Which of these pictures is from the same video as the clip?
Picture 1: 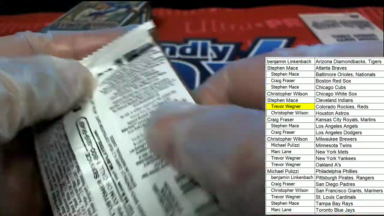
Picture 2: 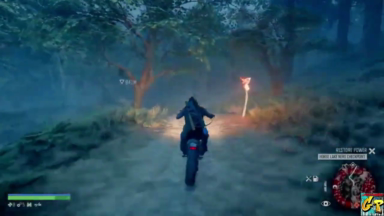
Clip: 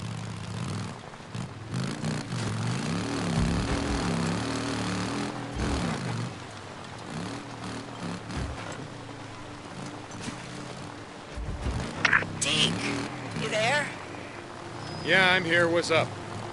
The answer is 2